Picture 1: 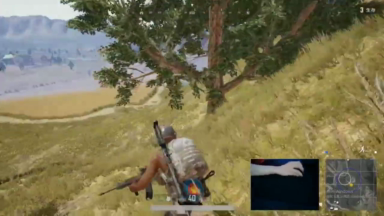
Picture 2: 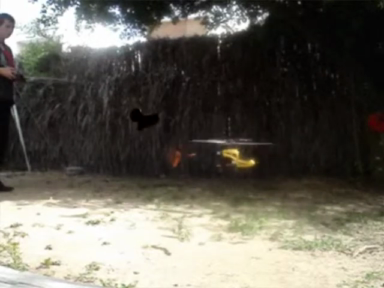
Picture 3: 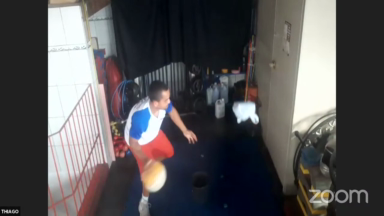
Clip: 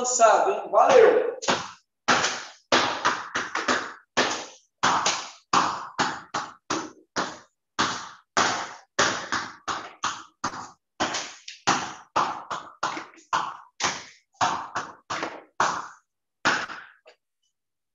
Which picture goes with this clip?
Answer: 3